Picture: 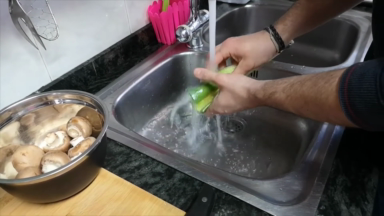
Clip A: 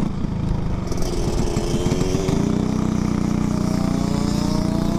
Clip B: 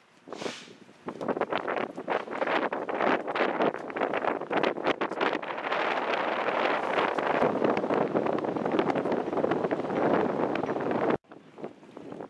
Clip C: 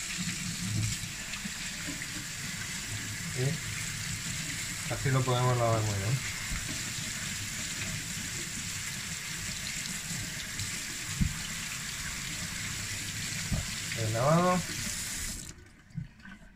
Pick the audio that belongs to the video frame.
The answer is C